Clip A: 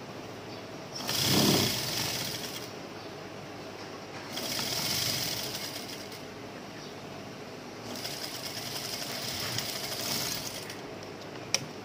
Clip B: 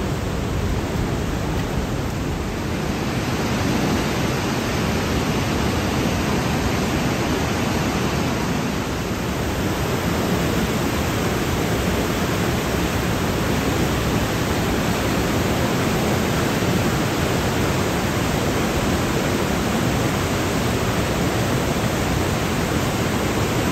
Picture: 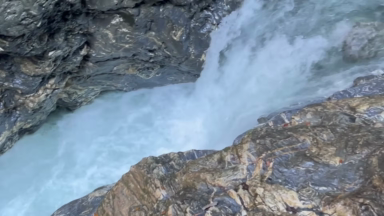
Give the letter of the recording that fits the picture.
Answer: B